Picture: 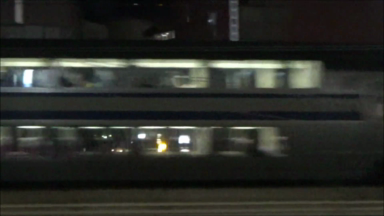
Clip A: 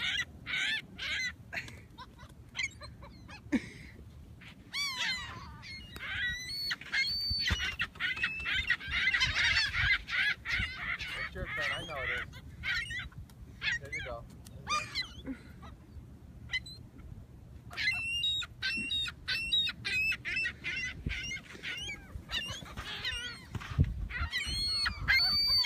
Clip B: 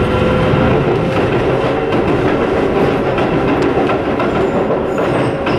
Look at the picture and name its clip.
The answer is B